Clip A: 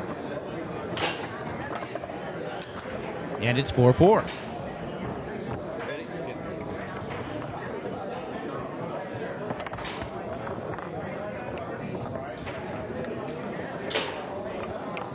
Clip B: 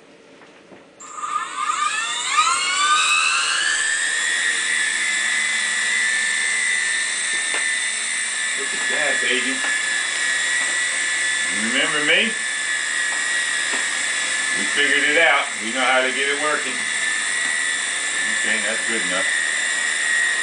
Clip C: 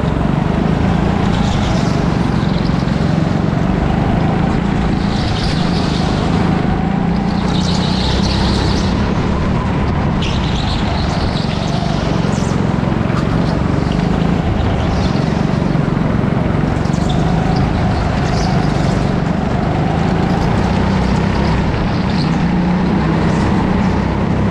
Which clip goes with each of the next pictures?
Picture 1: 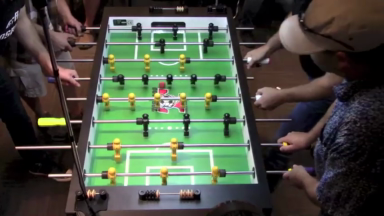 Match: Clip A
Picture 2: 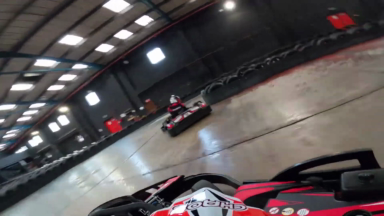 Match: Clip C